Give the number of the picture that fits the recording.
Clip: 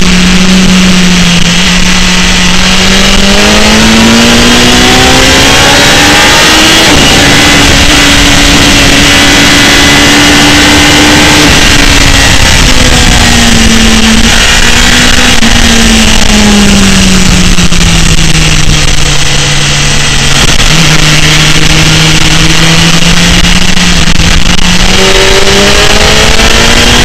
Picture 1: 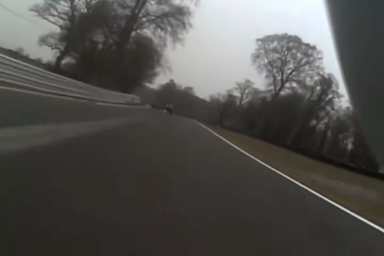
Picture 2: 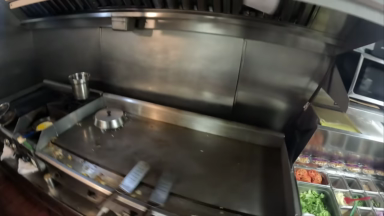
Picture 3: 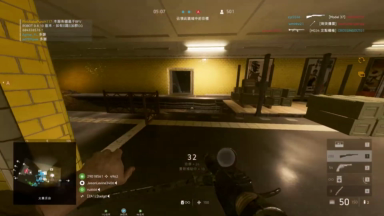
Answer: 1